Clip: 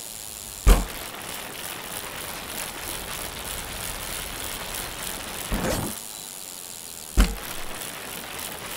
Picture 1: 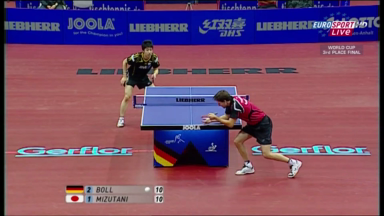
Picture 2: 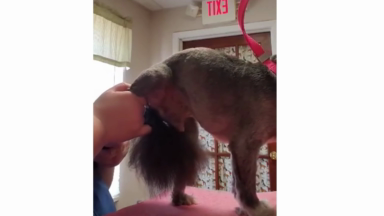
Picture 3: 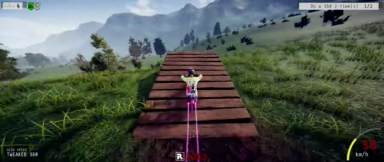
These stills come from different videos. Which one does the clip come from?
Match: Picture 3